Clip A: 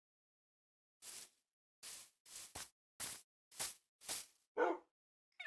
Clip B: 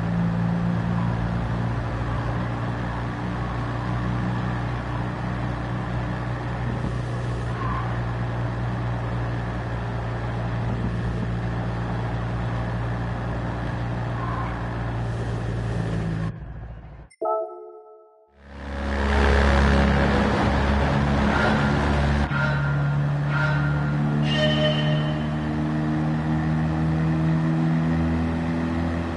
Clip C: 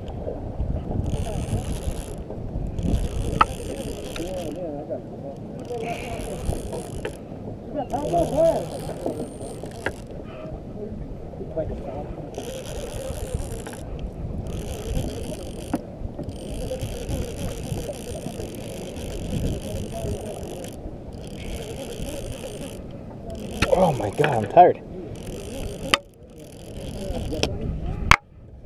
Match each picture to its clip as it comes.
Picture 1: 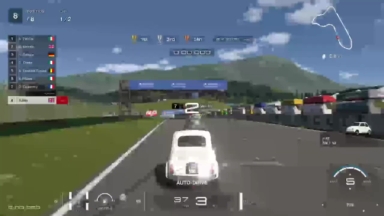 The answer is B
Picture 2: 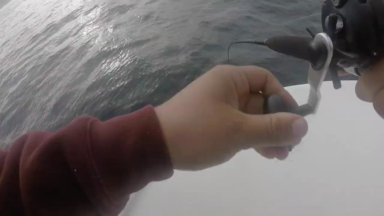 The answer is C